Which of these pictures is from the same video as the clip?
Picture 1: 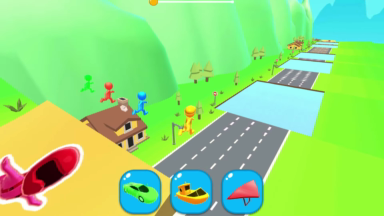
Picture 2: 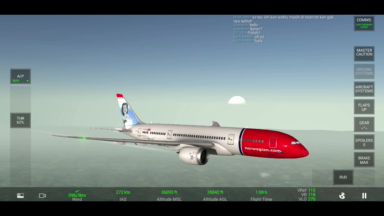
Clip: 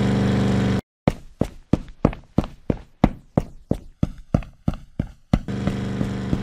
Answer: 1